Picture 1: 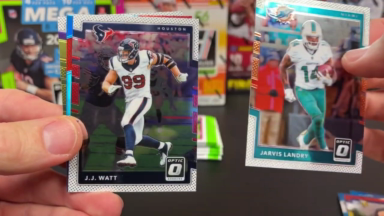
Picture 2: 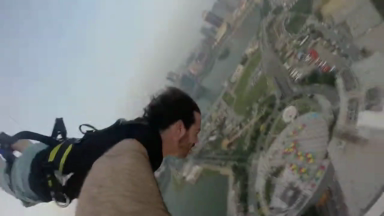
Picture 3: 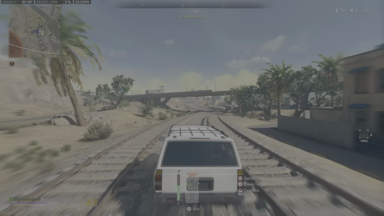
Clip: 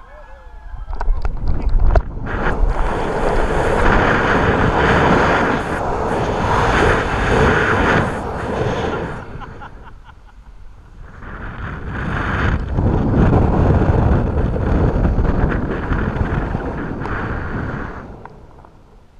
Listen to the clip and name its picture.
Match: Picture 2